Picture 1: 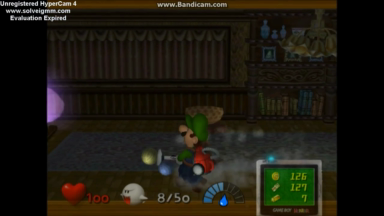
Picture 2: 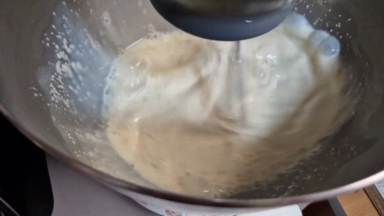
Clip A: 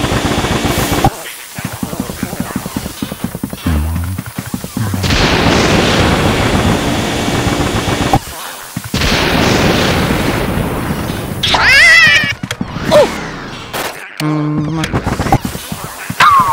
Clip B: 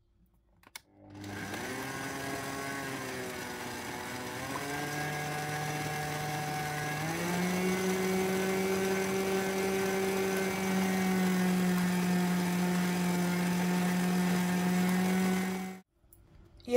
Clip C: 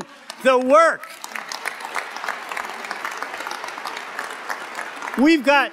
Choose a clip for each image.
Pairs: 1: A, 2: B